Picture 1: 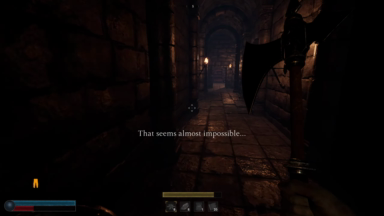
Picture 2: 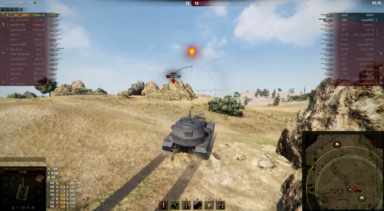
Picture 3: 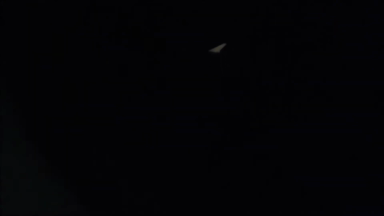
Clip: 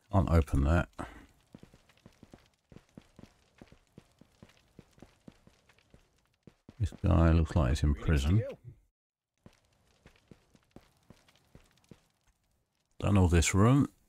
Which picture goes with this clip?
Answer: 1